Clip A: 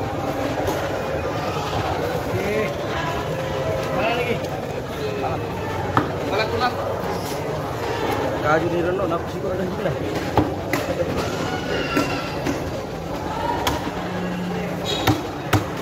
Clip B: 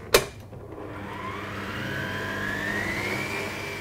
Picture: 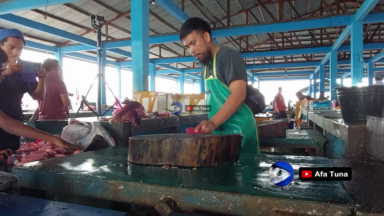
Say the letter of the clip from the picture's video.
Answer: A